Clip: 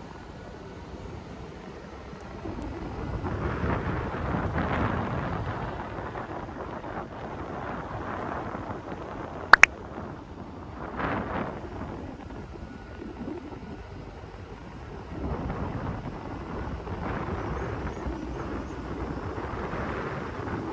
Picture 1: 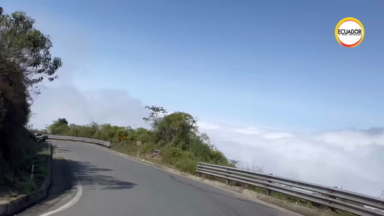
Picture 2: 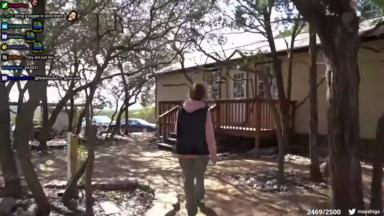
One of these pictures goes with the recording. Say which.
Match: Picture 1